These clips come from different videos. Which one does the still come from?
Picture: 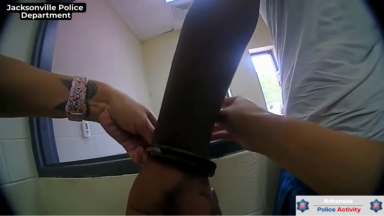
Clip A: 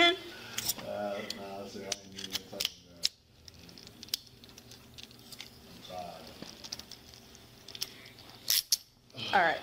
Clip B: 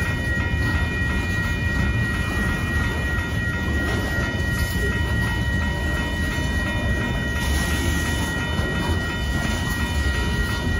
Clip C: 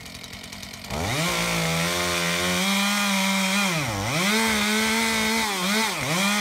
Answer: A